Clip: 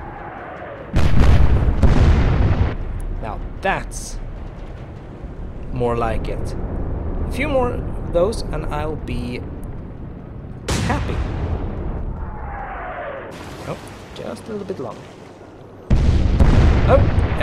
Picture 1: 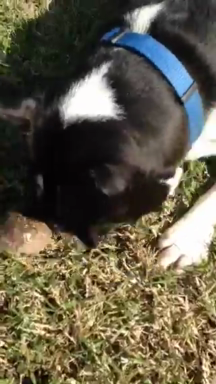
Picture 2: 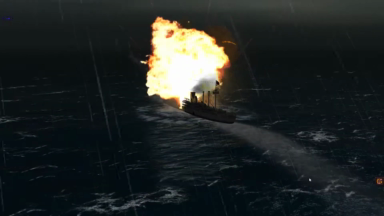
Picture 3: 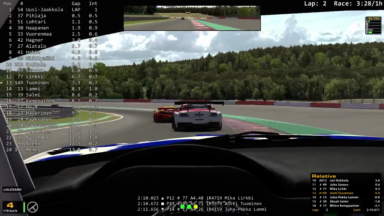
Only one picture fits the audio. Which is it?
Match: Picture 2